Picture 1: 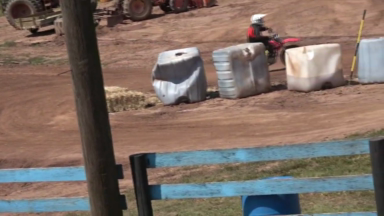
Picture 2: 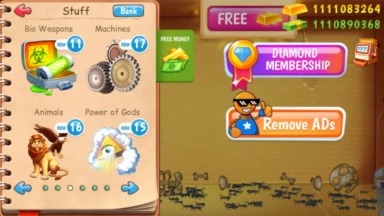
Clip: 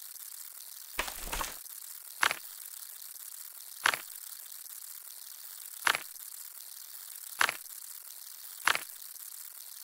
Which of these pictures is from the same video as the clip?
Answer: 2